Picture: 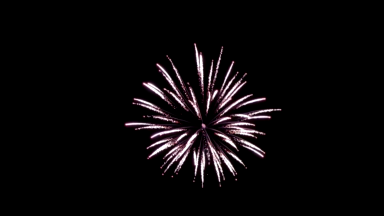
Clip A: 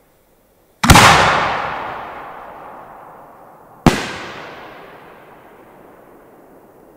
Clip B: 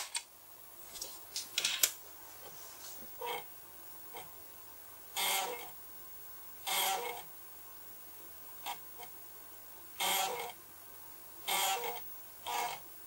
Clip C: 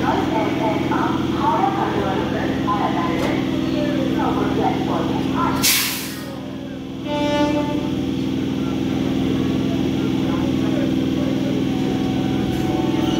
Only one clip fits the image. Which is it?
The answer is A